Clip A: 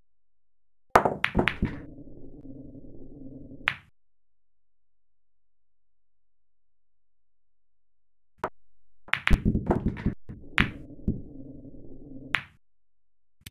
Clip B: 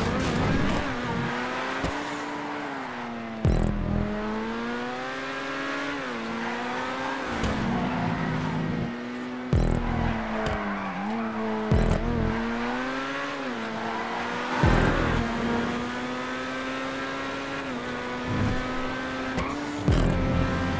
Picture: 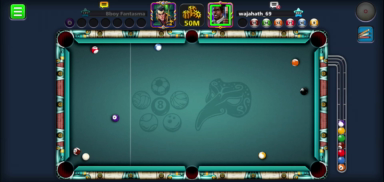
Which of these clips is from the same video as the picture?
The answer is A